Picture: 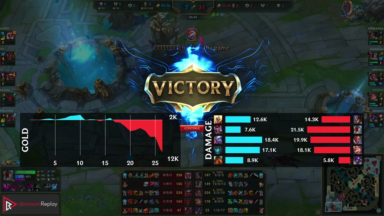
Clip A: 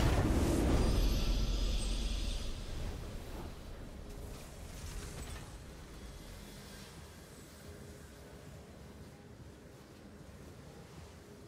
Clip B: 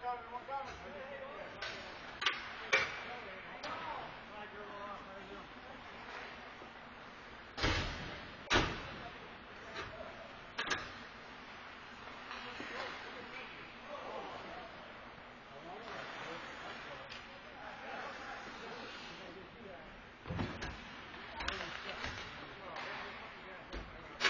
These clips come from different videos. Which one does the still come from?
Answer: A